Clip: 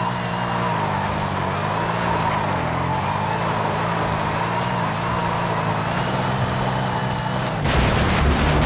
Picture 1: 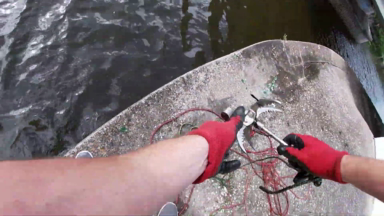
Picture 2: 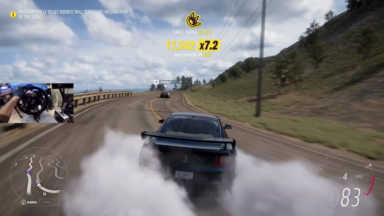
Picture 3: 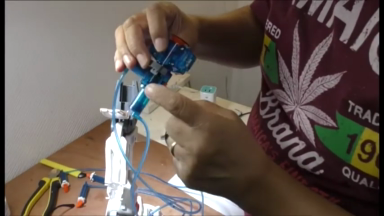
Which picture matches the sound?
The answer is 2